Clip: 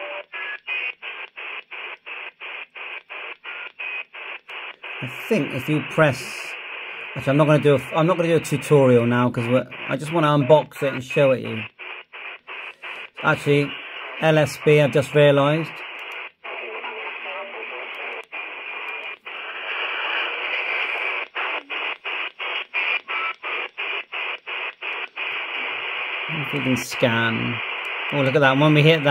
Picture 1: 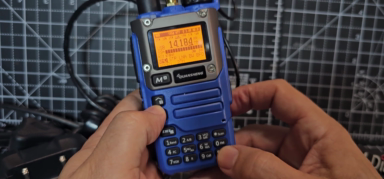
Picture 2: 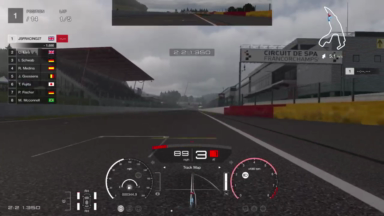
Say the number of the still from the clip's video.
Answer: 1